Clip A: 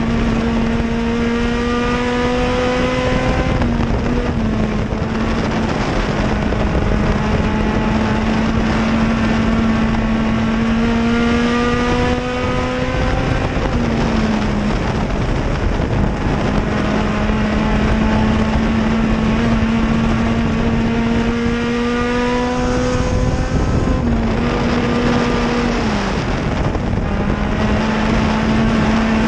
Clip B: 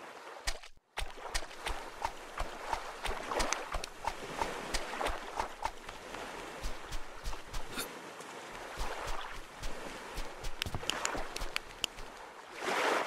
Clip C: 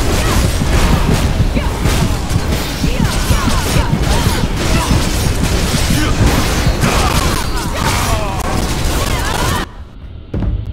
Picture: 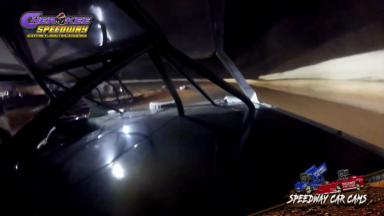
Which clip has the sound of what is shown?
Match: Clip A